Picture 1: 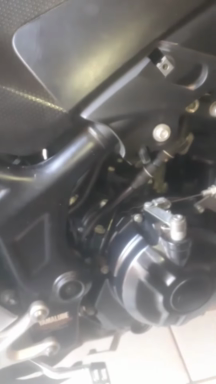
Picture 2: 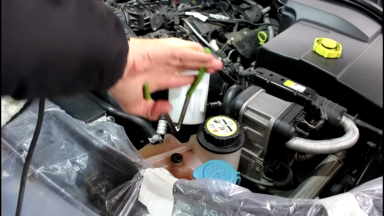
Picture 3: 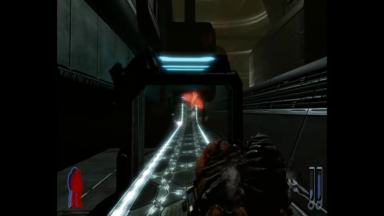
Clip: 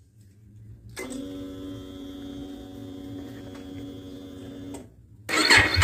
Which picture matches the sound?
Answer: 1